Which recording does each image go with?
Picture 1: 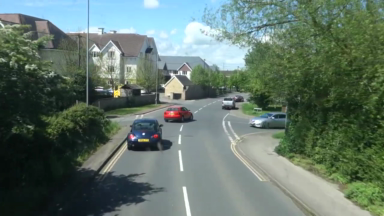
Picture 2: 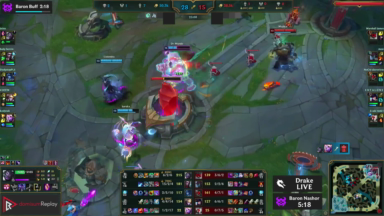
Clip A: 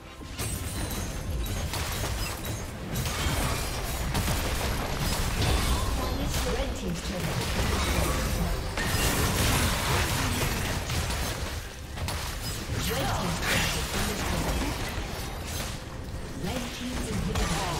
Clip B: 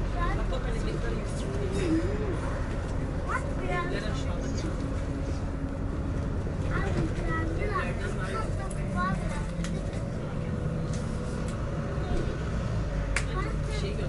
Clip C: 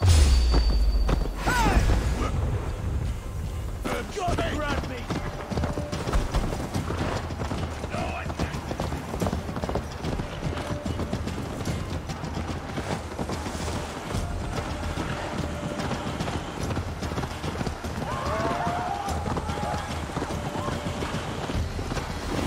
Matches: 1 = B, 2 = A